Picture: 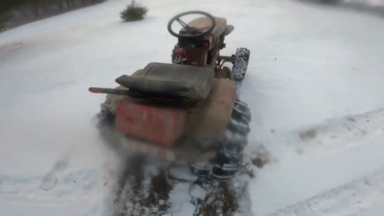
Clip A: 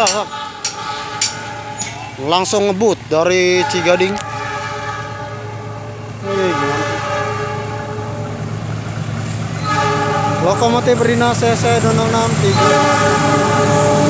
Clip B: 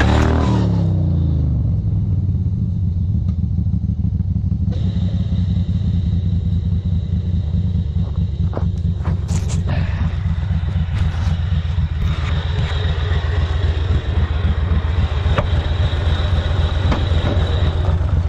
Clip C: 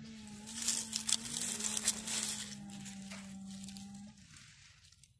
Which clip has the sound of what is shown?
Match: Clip B